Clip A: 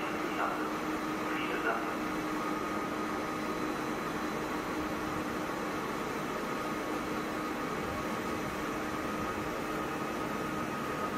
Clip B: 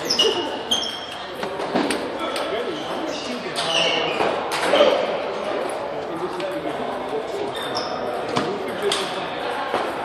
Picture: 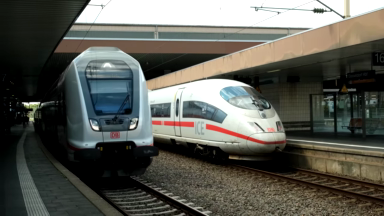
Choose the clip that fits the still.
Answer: A